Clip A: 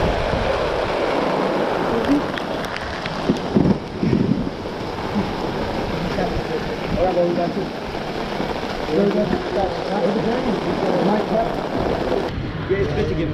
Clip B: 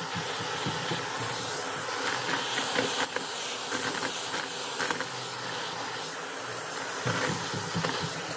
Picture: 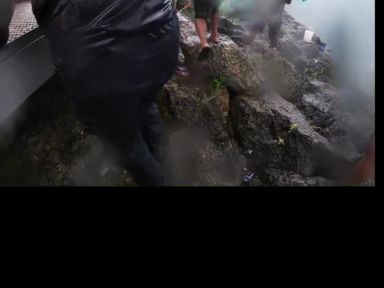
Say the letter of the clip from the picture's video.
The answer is A